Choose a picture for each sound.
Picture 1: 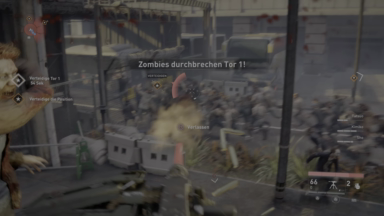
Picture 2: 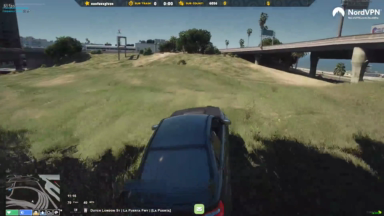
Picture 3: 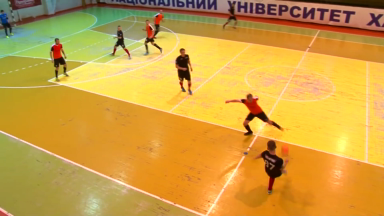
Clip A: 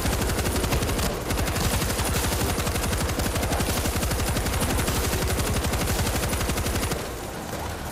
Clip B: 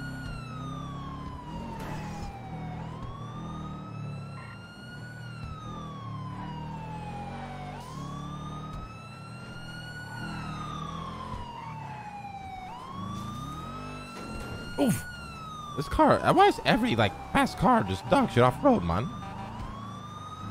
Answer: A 1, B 2